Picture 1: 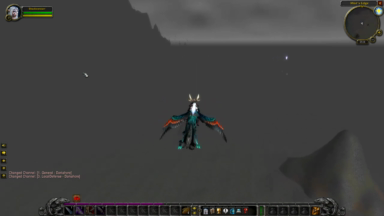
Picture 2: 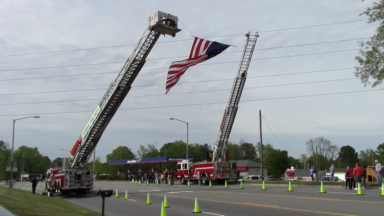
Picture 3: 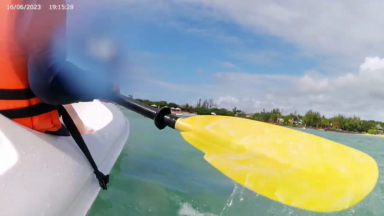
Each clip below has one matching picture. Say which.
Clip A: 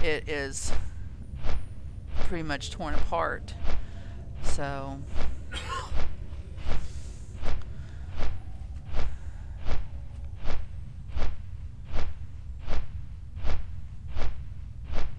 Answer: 1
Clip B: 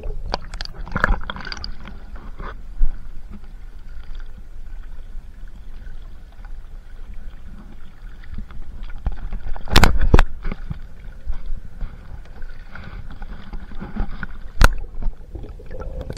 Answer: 3